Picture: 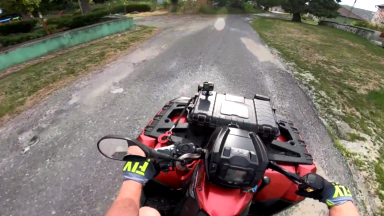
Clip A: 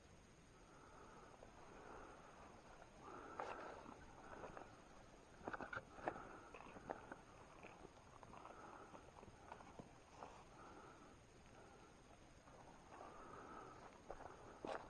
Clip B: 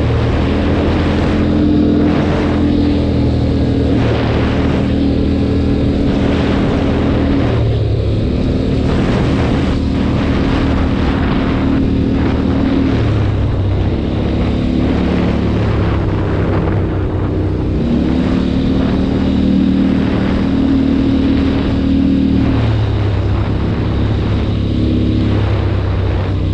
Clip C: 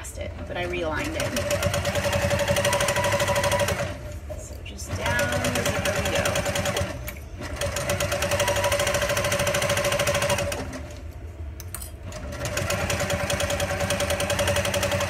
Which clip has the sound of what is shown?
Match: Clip B